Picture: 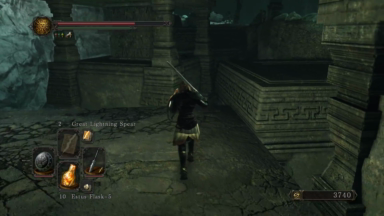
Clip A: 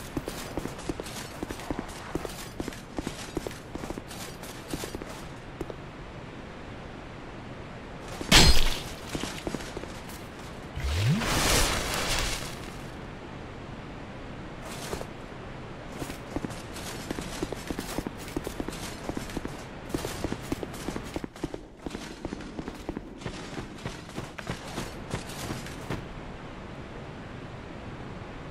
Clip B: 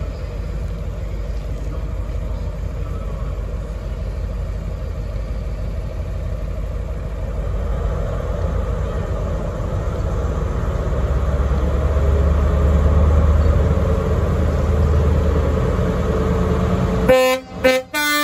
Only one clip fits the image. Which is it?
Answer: A